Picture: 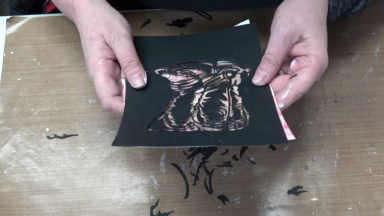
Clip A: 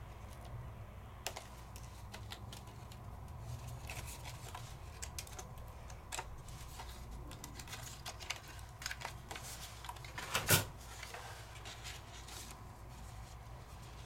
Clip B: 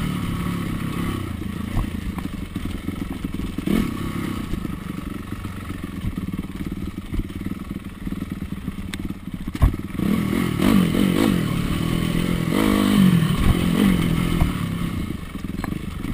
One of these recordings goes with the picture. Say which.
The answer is A